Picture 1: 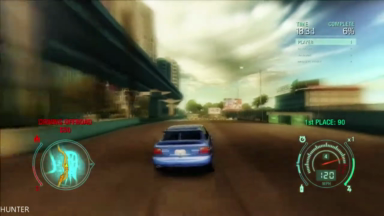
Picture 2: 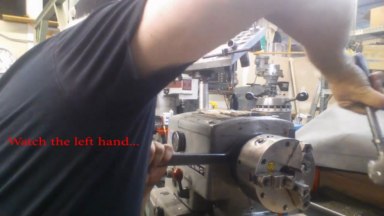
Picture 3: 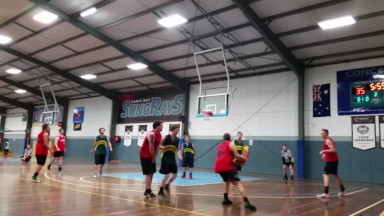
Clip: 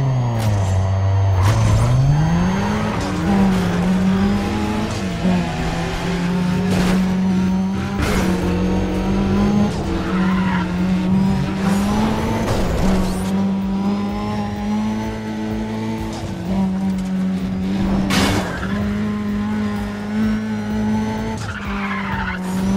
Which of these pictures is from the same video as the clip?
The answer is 1